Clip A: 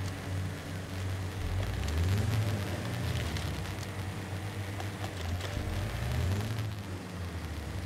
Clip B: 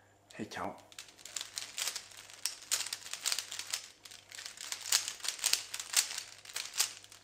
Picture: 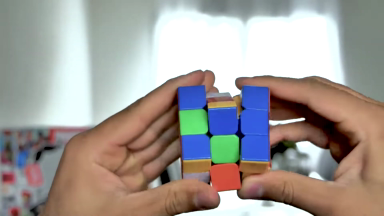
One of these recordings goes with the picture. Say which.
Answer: B